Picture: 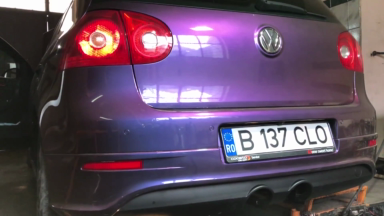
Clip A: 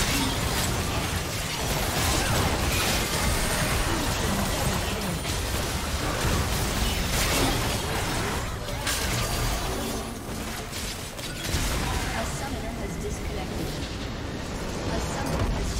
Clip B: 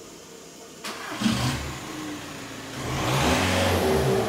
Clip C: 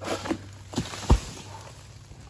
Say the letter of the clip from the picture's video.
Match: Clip B